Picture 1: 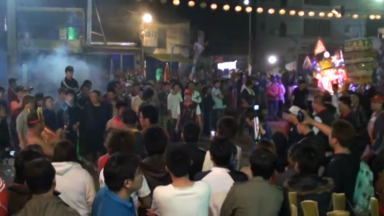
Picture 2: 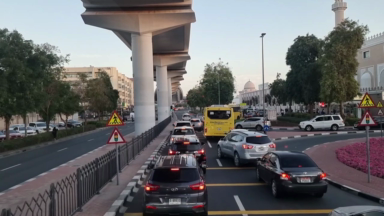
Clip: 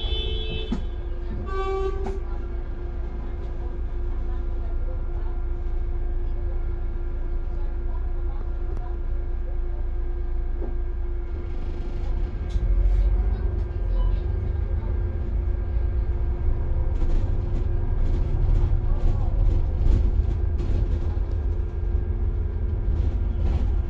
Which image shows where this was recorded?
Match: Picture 2